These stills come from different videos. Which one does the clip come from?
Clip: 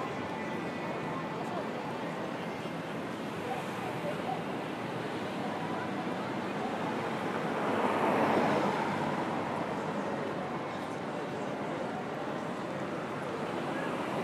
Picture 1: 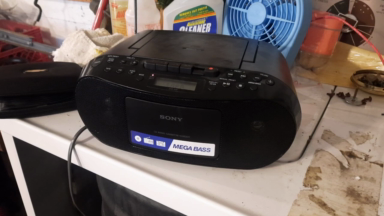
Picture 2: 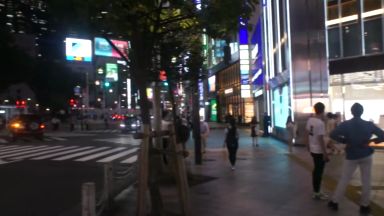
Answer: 2